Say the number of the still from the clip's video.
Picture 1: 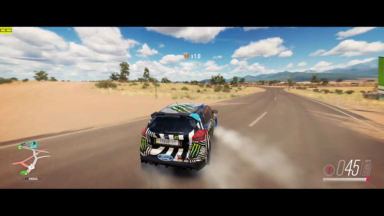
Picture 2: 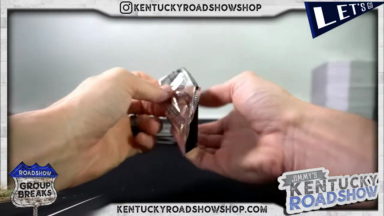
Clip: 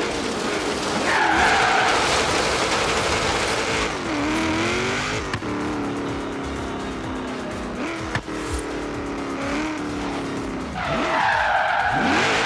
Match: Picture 1